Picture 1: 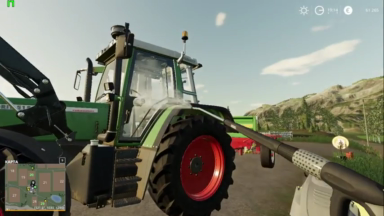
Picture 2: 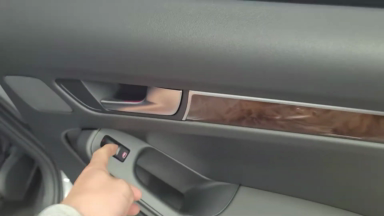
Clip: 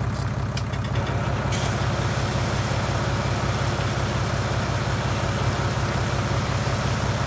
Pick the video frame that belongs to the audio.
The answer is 1